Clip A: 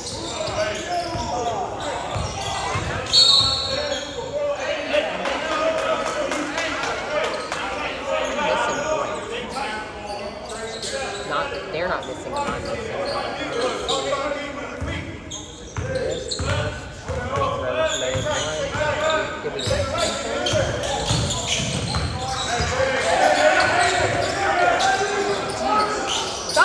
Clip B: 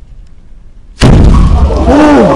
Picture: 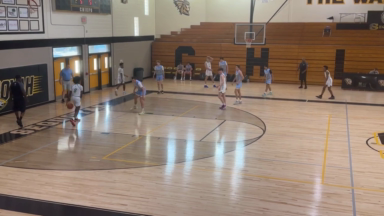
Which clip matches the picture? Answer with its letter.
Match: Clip A